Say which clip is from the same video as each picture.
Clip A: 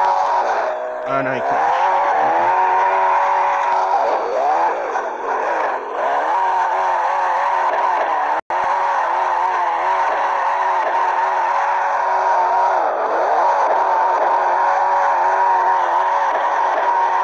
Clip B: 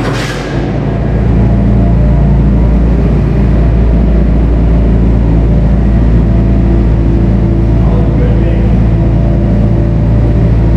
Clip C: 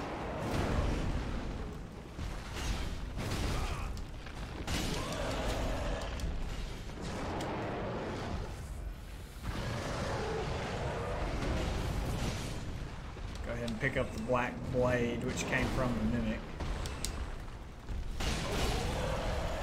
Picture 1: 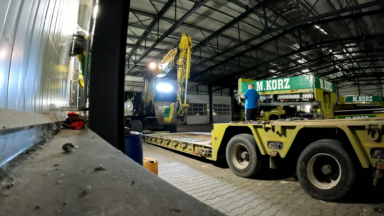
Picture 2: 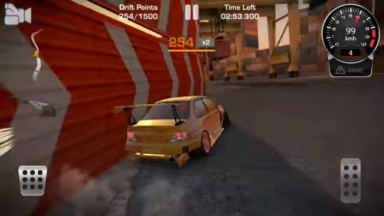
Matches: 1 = B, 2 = A